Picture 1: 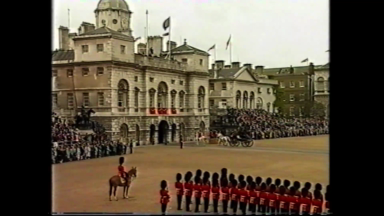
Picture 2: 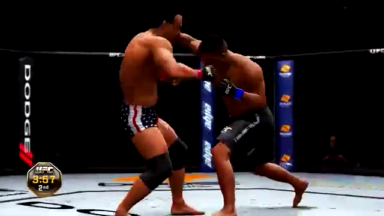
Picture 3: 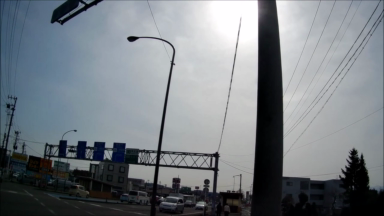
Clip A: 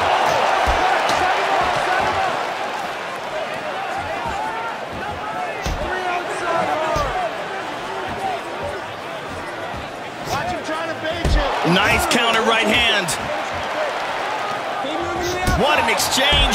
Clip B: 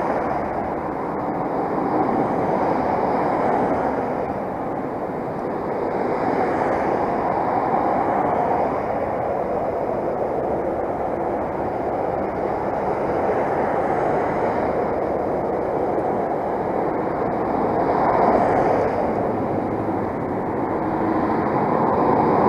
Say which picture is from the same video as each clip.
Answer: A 2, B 3